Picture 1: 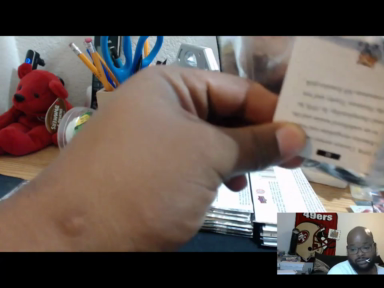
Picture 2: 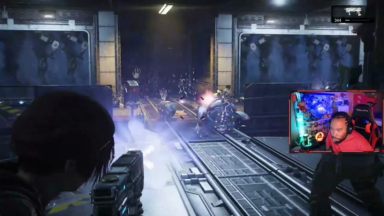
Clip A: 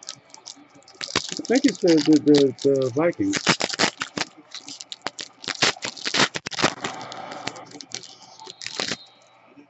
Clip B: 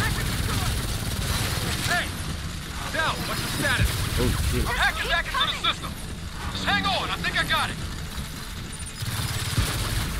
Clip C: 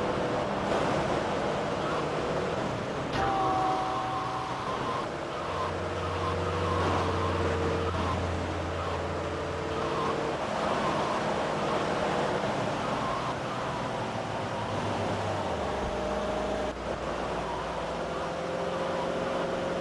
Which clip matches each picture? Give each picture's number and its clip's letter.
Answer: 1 A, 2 B